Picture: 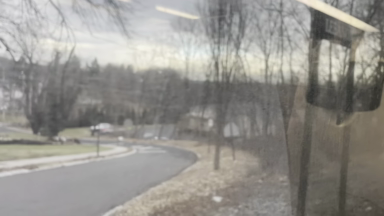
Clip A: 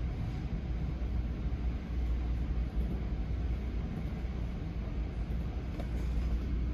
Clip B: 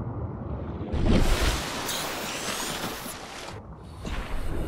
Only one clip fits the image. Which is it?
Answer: A